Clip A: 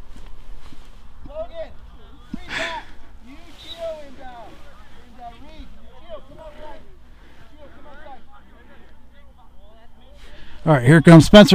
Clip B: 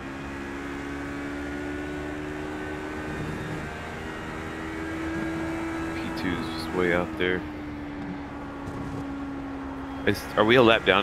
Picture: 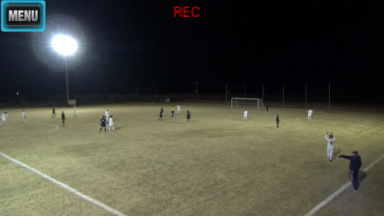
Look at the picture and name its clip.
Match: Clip A